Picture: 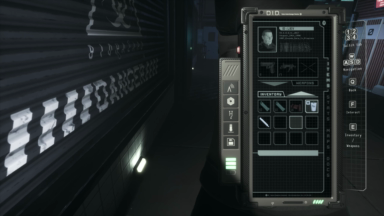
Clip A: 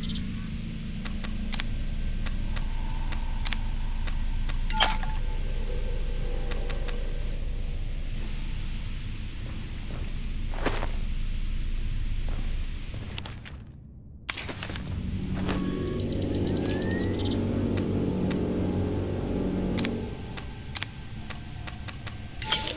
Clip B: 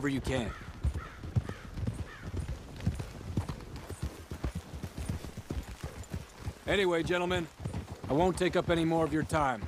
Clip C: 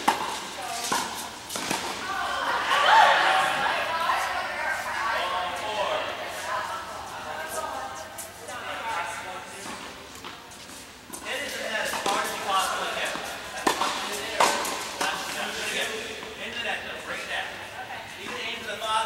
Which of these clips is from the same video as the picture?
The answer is A